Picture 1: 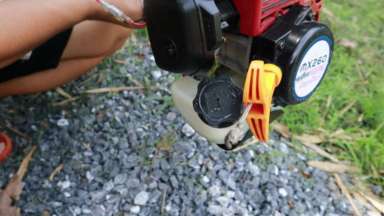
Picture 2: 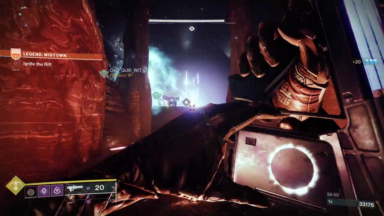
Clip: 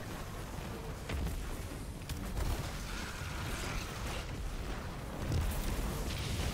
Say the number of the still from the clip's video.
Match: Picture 2